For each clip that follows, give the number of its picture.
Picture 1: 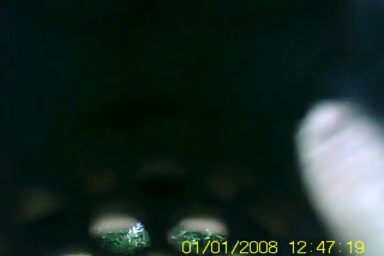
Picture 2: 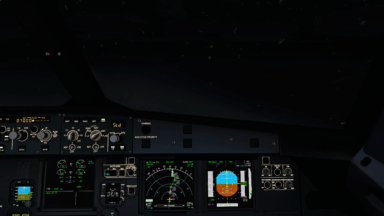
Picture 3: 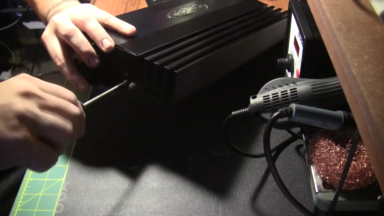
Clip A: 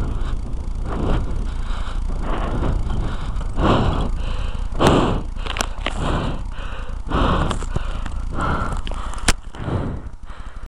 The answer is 1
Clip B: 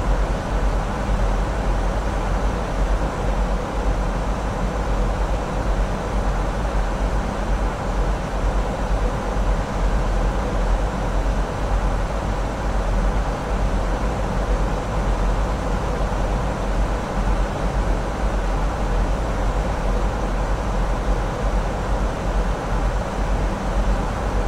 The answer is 2